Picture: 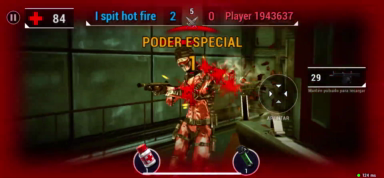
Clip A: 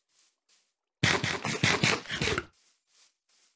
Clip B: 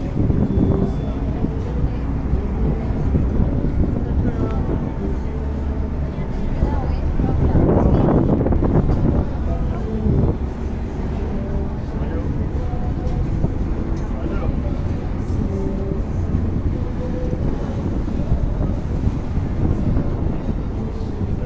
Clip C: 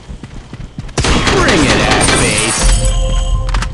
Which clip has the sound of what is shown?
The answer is C